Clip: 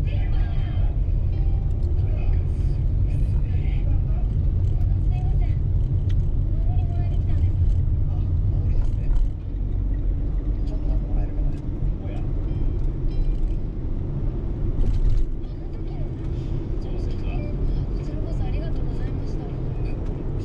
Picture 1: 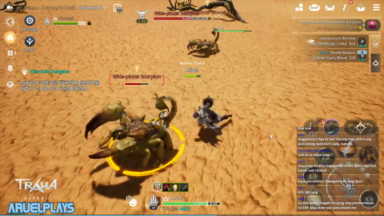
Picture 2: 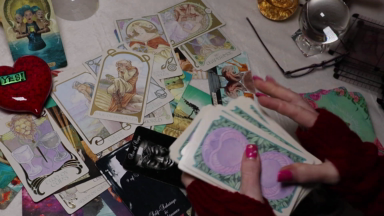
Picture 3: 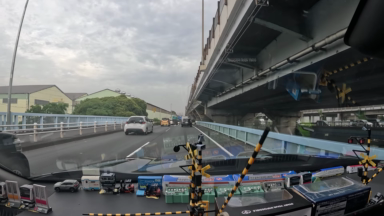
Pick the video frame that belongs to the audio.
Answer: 3